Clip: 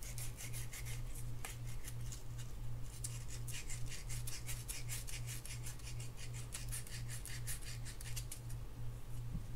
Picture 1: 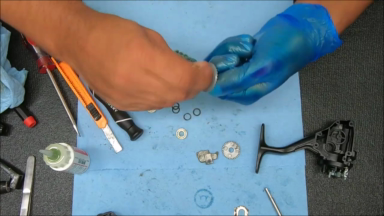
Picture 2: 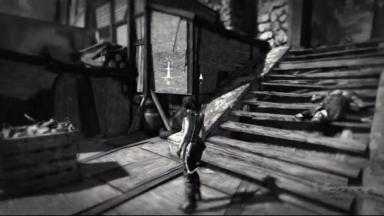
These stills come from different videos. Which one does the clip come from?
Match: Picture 1